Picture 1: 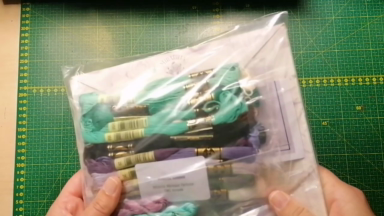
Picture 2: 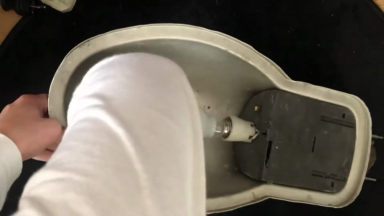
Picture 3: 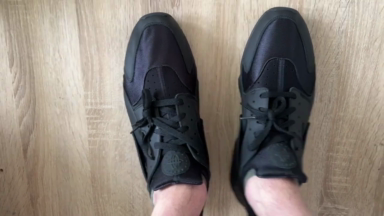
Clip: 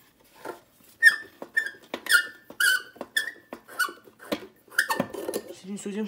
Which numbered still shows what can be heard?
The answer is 2